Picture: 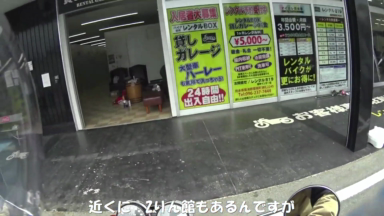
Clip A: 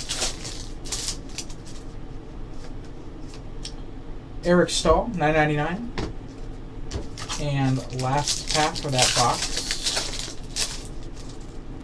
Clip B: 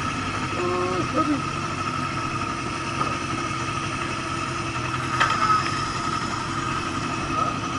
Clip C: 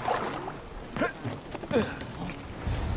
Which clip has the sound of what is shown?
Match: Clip B